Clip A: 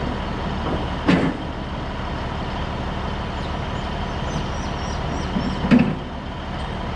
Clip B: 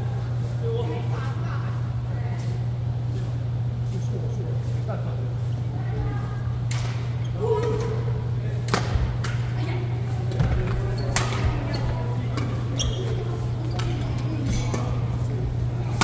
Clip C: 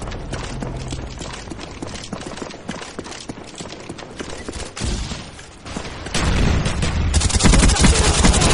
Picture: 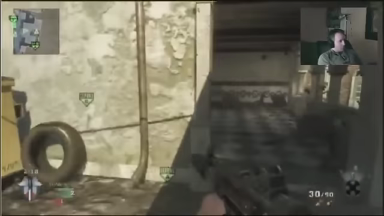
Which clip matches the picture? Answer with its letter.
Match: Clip C